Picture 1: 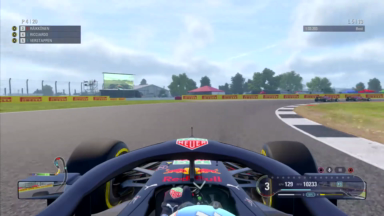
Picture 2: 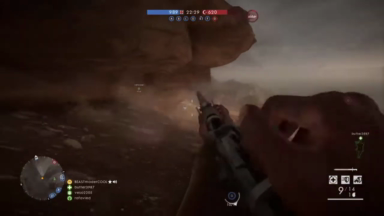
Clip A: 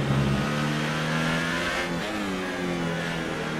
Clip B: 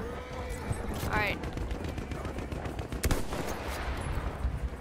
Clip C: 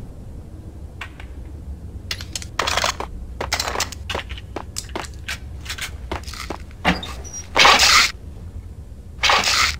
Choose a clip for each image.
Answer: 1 A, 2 B